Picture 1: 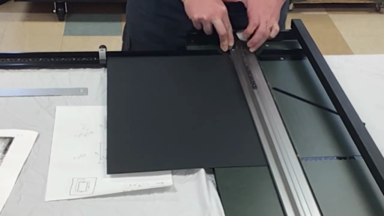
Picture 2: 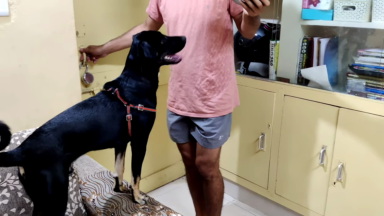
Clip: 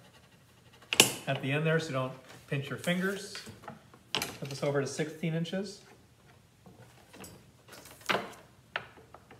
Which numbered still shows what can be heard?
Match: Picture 1